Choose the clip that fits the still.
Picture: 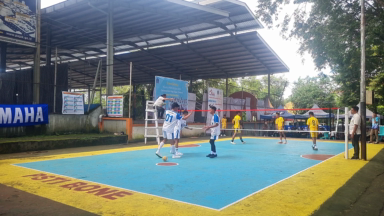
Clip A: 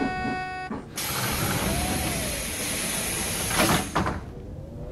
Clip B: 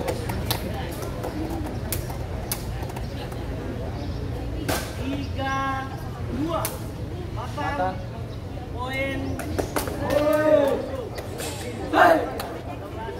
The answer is B